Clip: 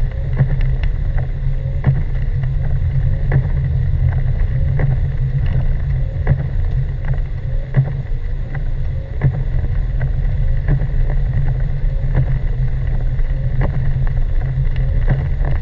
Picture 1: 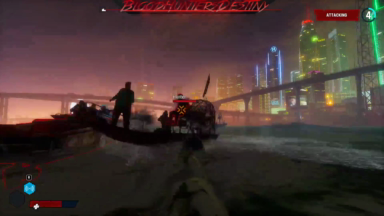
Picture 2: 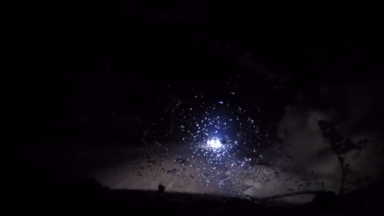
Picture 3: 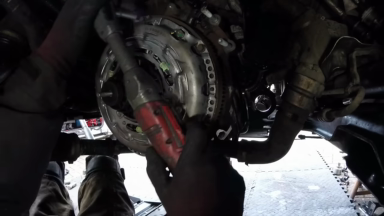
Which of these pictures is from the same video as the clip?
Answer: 2